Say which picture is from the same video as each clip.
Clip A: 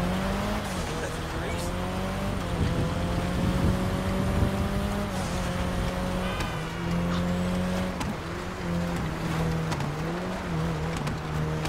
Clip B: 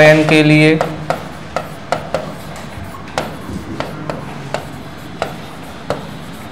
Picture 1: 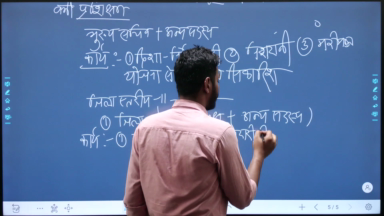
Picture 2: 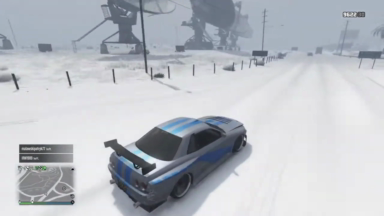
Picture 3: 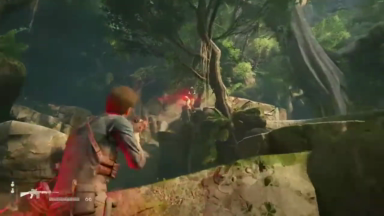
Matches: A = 2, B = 1